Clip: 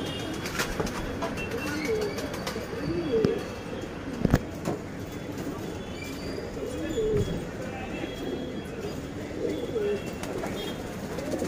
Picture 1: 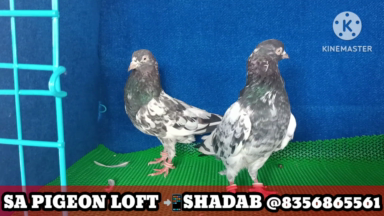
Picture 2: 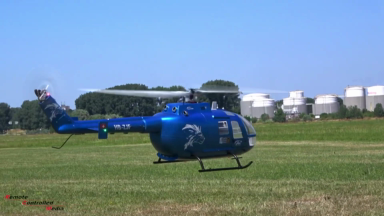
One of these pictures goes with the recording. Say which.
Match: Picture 1